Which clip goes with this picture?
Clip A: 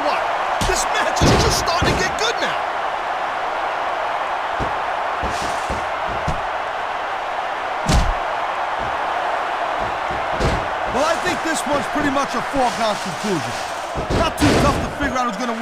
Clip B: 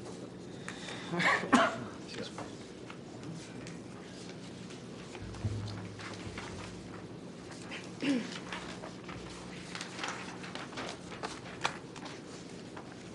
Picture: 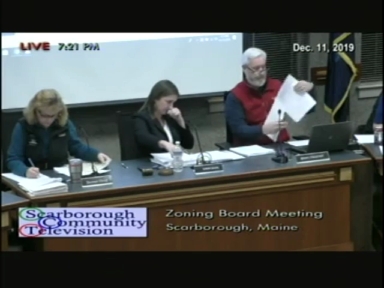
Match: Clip B